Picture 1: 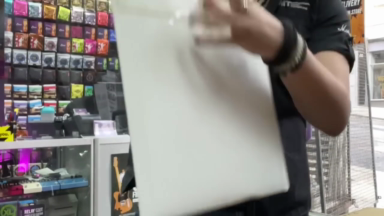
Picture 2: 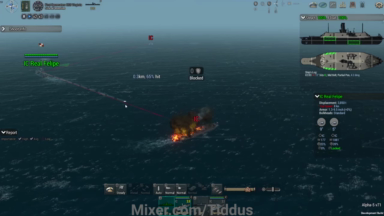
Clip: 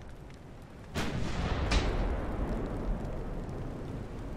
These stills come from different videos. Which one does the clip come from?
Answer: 2